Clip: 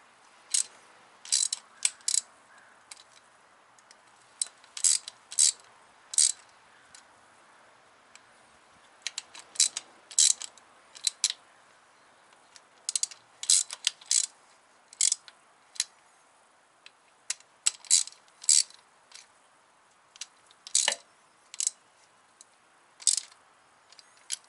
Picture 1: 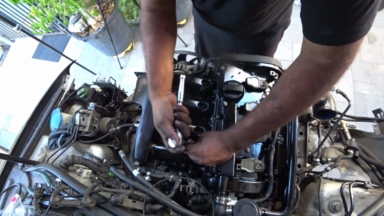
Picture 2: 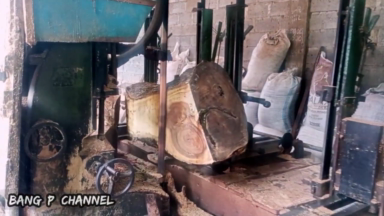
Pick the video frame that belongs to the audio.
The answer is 1